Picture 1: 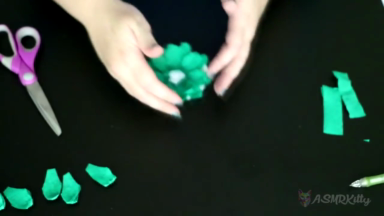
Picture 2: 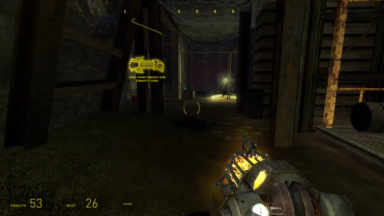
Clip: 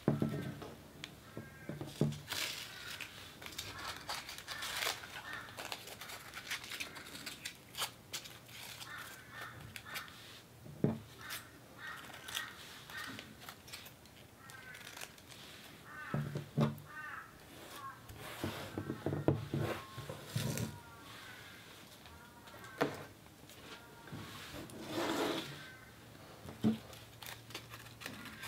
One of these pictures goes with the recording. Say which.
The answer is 1